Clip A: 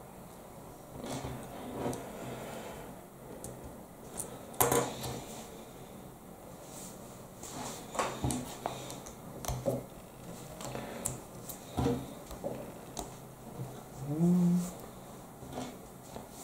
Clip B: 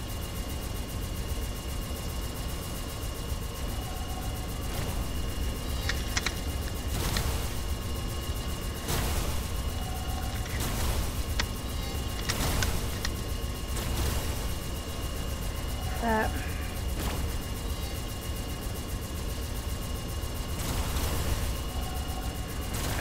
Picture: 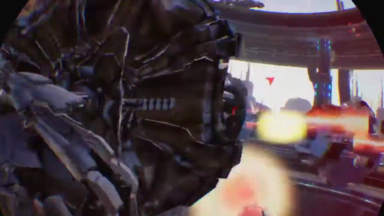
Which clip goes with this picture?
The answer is B